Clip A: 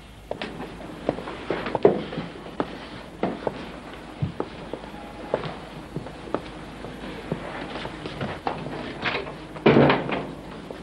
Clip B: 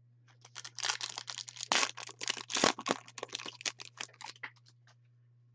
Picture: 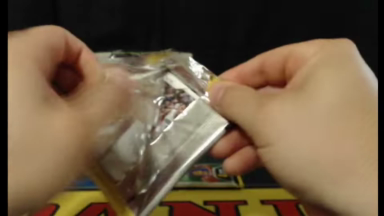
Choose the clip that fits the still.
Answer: B